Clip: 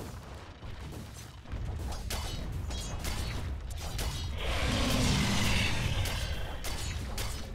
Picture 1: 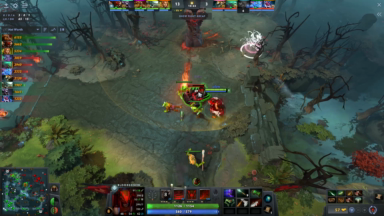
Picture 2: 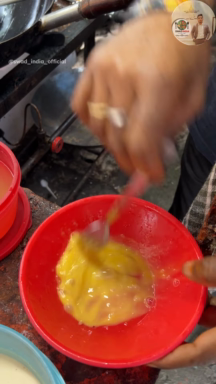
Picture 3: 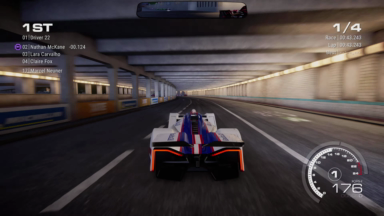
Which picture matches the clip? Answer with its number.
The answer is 1